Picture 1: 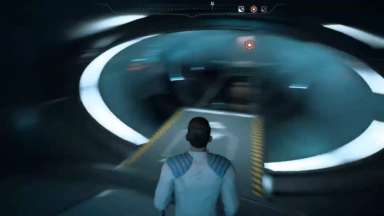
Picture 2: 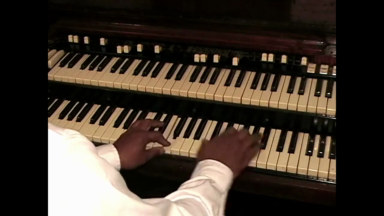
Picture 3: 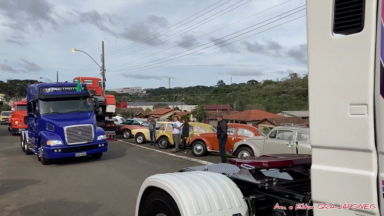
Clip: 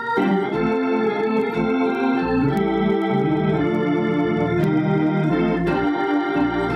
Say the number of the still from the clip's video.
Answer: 2